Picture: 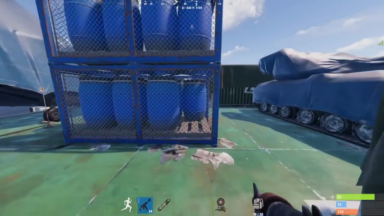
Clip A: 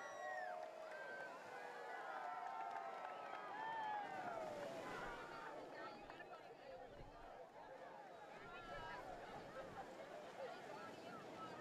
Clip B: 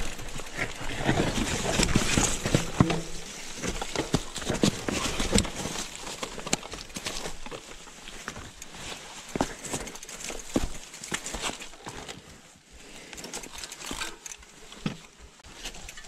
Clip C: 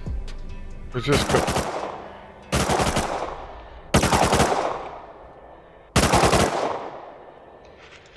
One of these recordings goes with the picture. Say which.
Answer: C